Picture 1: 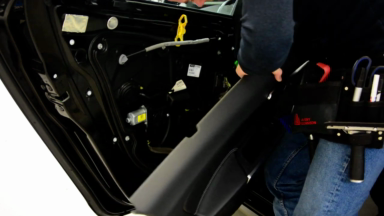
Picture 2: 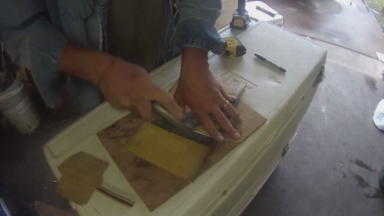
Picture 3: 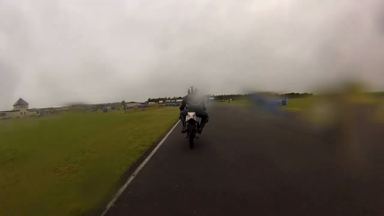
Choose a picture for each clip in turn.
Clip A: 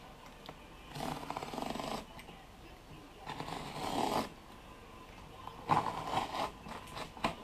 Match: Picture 2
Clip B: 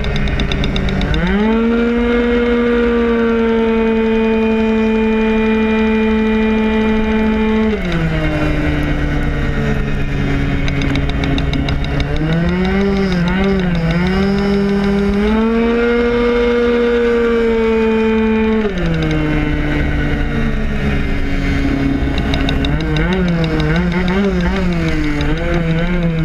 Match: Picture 3